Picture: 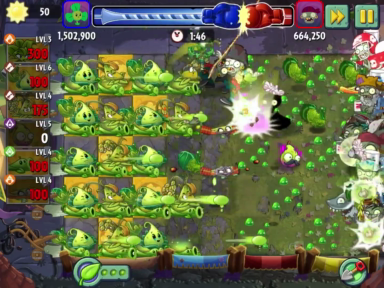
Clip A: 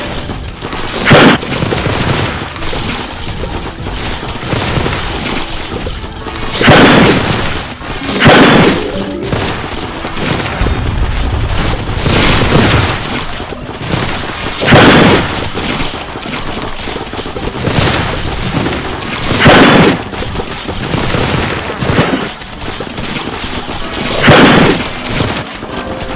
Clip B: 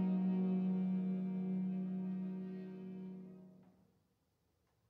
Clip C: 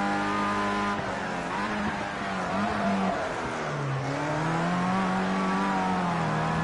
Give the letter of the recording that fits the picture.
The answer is A